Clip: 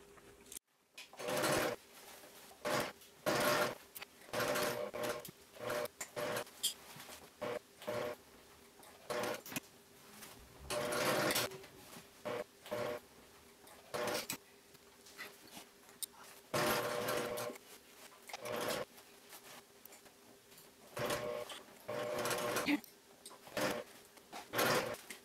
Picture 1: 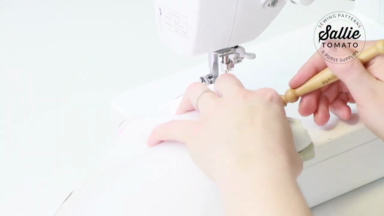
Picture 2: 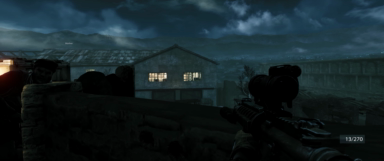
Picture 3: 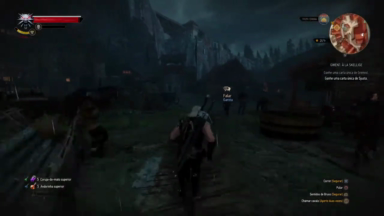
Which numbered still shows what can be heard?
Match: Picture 1